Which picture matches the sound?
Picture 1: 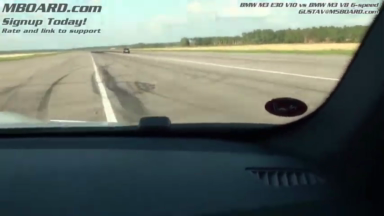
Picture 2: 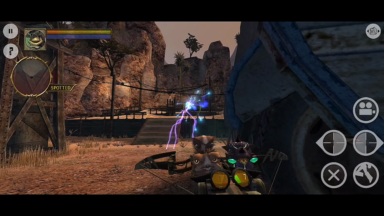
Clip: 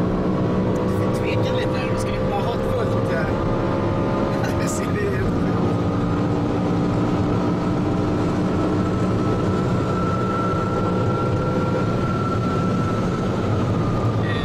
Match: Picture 1